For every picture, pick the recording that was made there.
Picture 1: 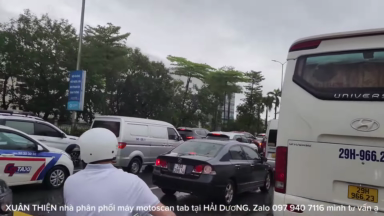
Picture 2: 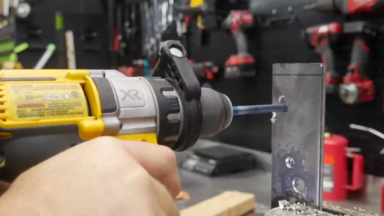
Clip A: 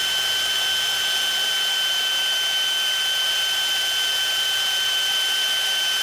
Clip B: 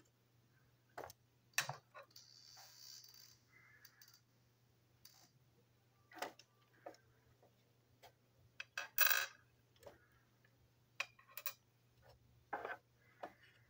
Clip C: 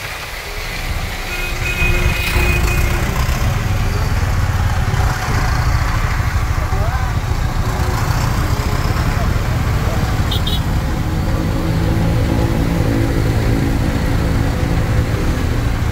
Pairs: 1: C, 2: A